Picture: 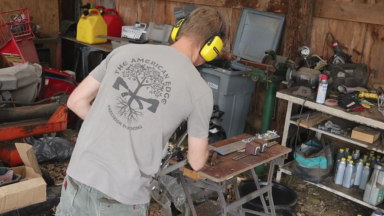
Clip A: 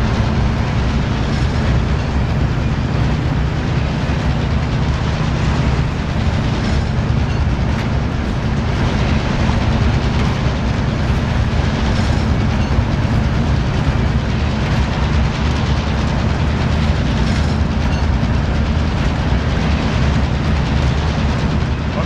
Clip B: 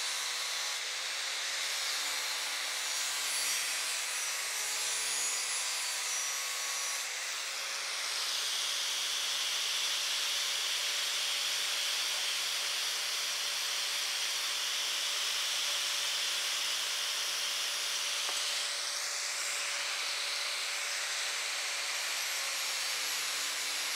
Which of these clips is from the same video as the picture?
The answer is B